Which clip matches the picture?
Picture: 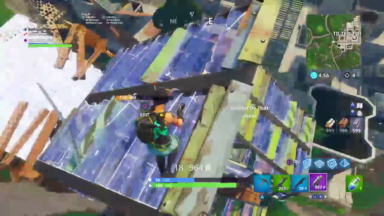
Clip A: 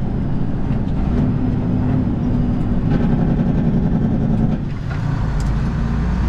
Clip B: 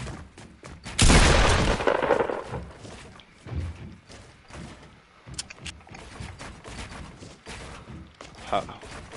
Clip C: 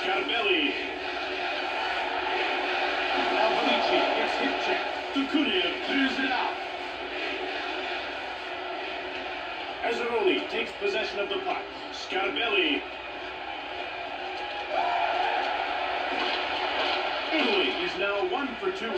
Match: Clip B